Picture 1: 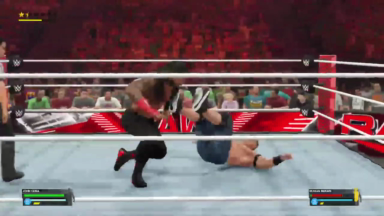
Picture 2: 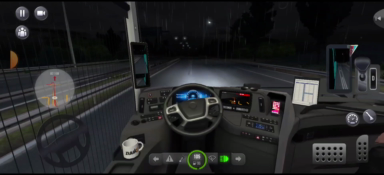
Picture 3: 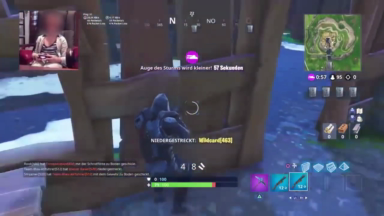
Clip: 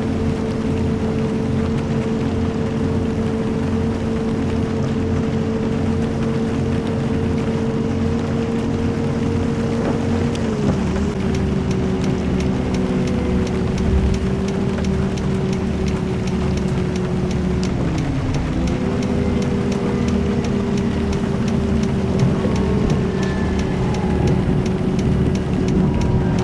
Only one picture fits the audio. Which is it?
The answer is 2